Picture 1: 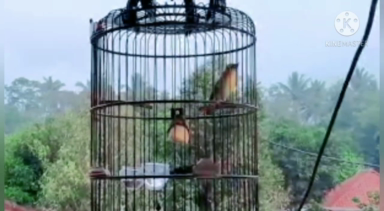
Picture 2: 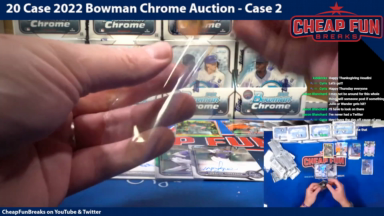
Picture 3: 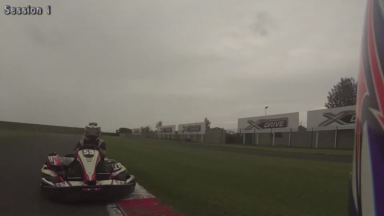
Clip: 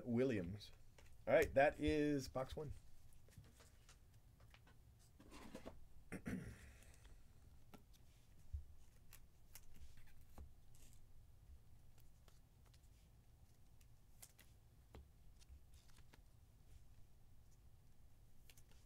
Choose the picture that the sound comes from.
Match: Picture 2